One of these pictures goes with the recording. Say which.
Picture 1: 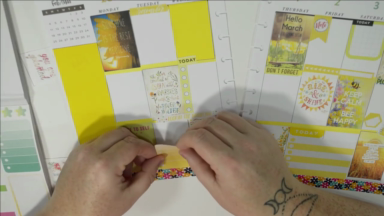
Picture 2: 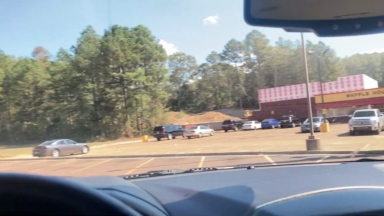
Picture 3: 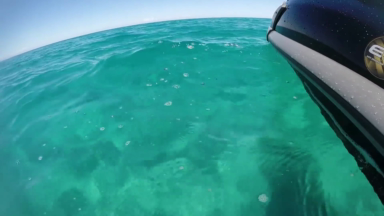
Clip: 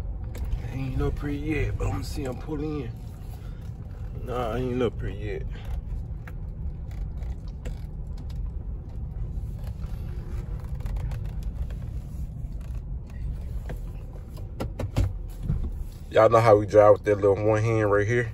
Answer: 2